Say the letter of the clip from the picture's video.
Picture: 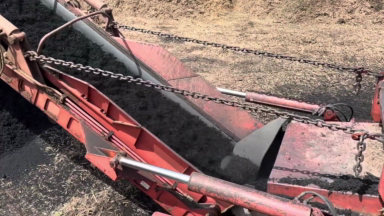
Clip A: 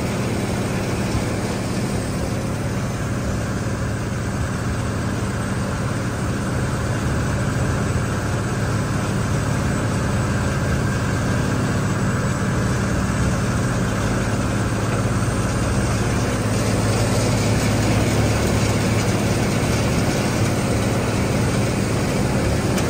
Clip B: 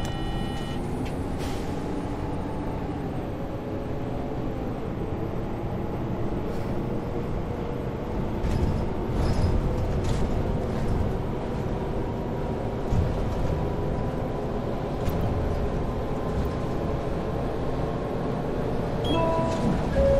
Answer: A